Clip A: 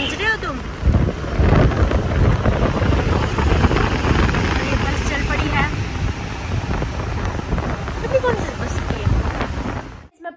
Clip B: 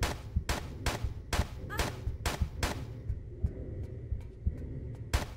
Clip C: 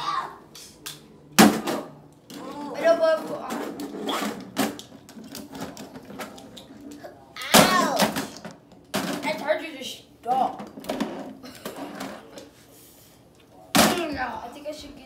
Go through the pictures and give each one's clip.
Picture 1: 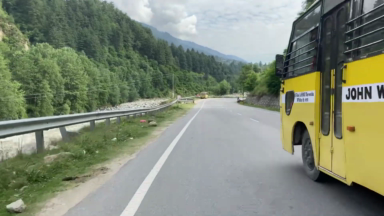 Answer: A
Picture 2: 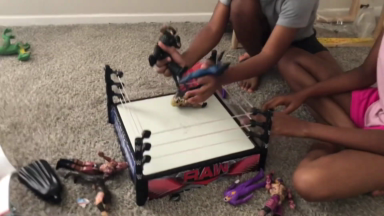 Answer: C